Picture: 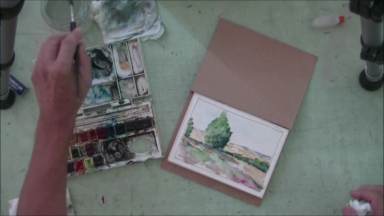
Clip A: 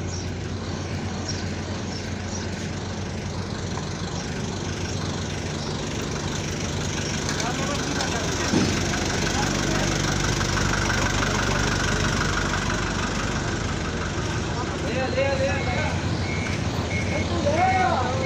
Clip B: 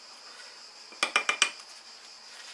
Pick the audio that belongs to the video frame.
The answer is B